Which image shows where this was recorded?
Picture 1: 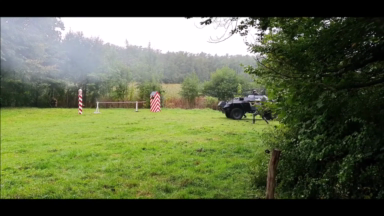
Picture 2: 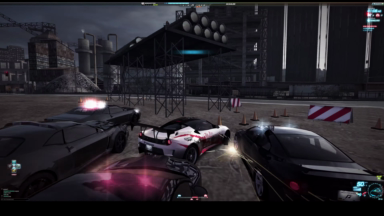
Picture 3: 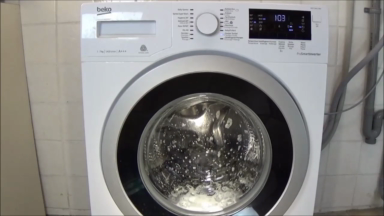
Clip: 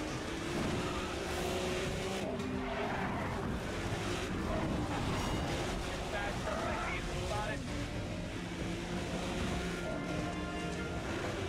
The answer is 2